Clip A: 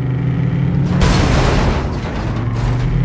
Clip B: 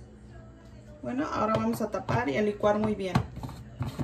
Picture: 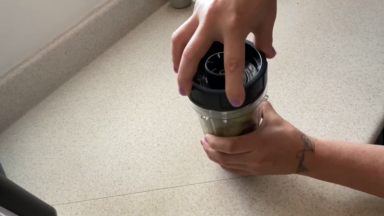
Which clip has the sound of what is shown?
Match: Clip B